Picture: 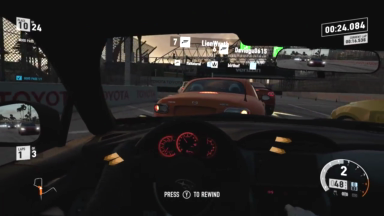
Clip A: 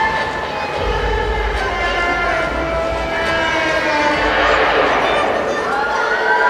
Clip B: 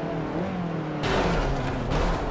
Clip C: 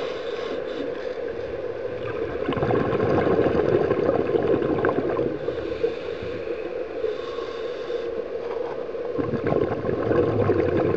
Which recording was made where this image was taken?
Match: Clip B